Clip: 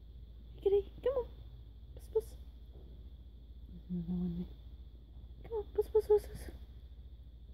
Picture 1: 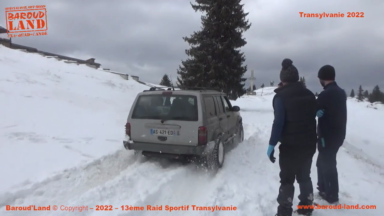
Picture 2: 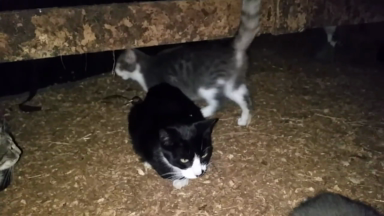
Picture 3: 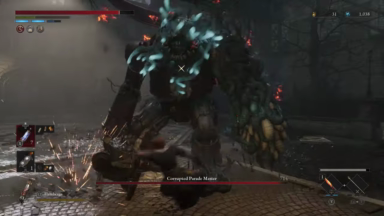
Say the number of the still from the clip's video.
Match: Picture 2